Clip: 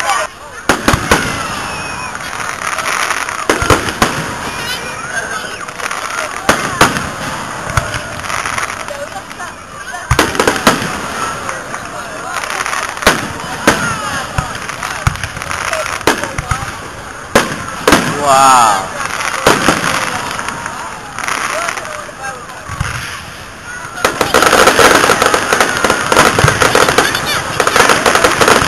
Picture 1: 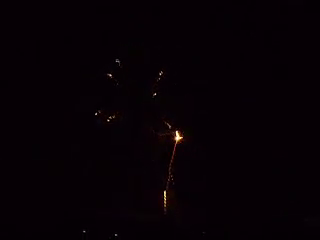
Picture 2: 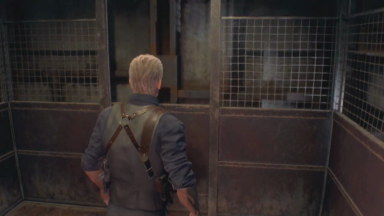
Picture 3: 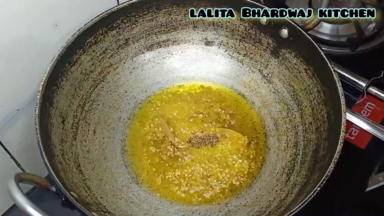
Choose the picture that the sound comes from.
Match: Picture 1